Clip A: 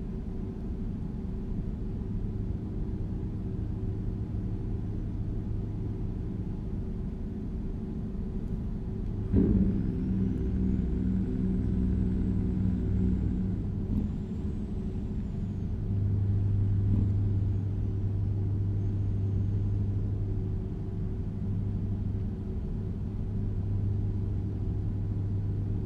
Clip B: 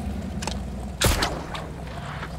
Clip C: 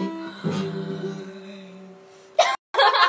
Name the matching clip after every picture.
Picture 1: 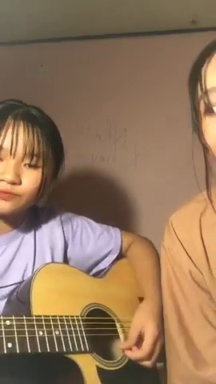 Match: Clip C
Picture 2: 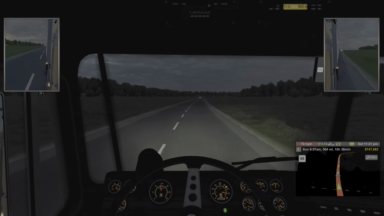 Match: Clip A